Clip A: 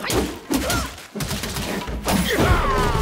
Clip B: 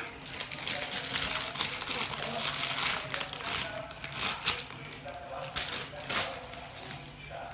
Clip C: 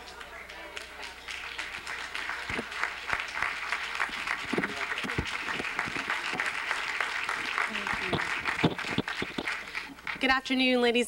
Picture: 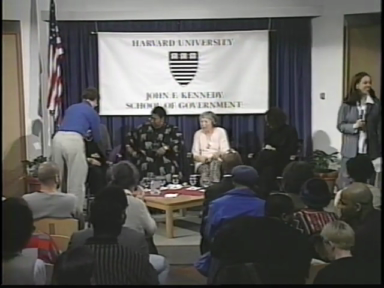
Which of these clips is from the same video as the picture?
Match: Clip C